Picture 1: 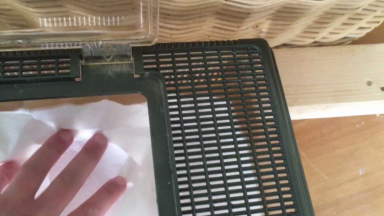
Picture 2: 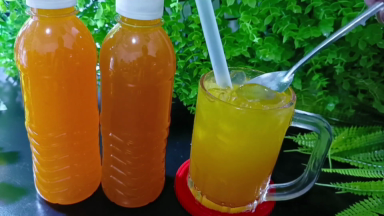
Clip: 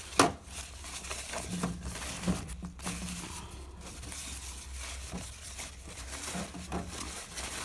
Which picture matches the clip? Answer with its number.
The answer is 1